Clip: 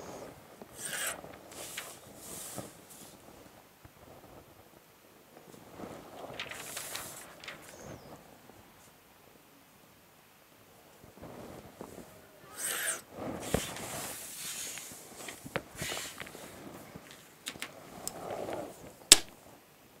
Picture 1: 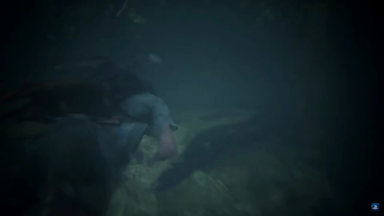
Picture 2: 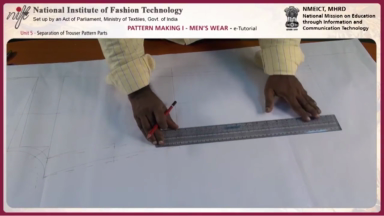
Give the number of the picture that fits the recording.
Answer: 2